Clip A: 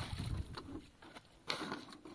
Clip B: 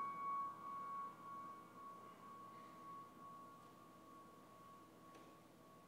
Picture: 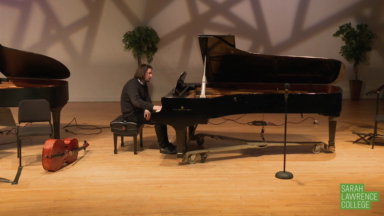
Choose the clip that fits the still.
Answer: B